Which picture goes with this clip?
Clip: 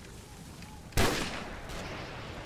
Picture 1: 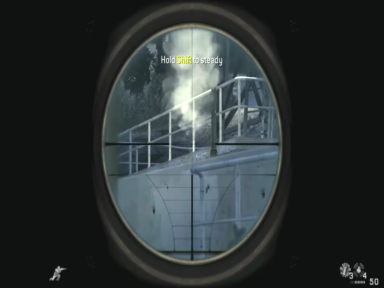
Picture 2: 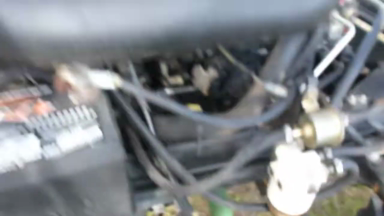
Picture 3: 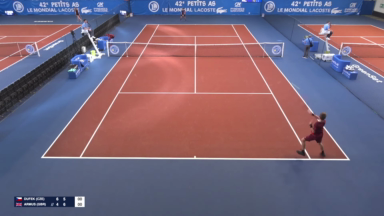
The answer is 1